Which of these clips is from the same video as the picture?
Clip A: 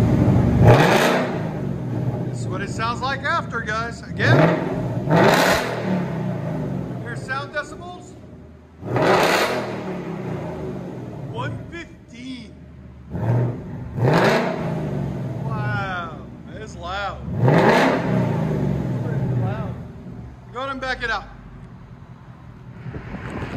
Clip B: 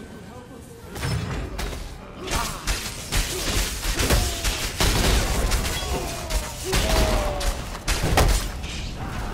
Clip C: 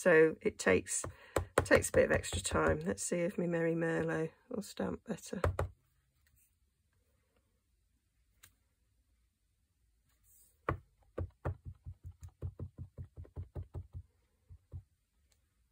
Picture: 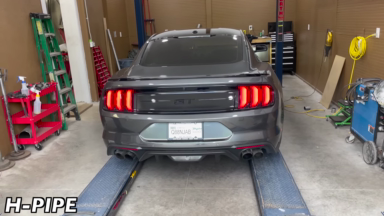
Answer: A